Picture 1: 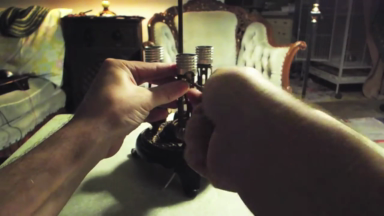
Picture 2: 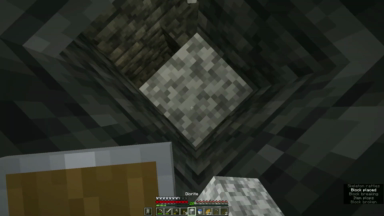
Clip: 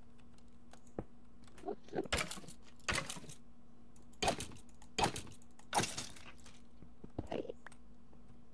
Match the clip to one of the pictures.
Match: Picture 2